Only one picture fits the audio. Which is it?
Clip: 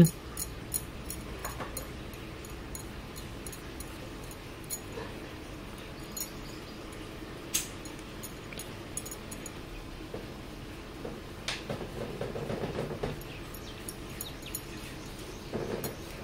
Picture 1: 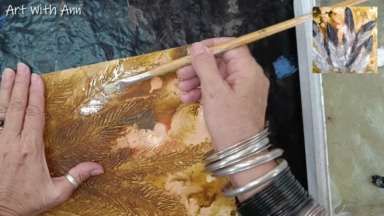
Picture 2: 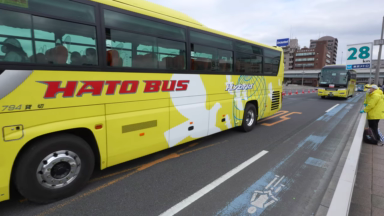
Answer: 1